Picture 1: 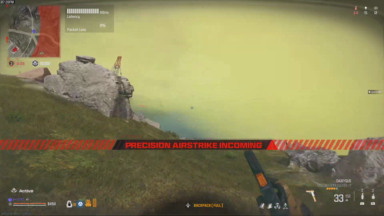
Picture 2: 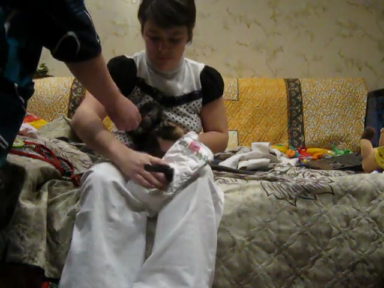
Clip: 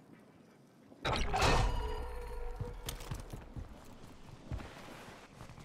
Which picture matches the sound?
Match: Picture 1